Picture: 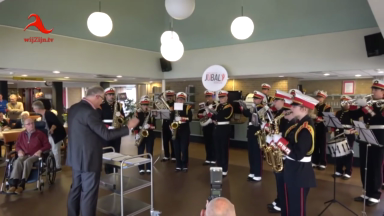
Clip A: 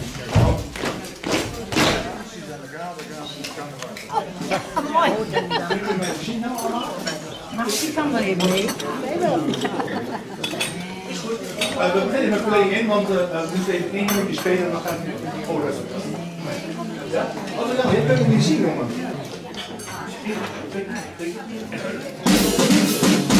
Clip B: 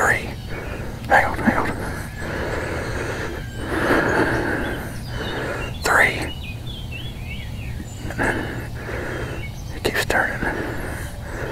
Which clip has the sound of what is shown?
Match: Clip A